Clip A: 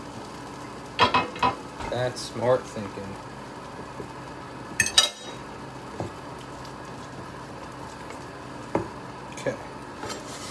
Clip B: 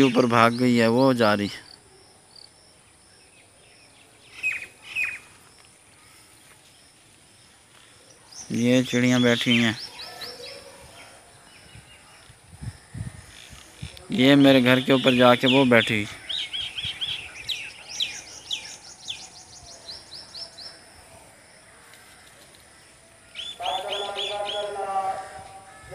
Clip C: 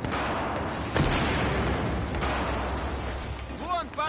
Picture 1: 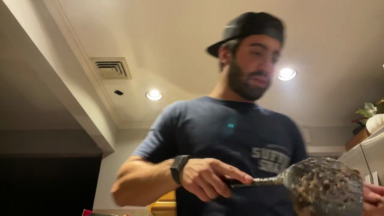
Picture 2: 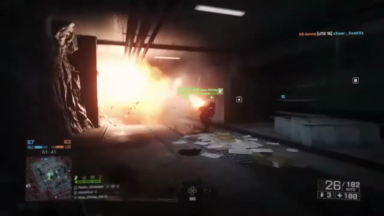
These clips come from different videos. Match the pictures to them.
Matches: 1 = A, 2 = C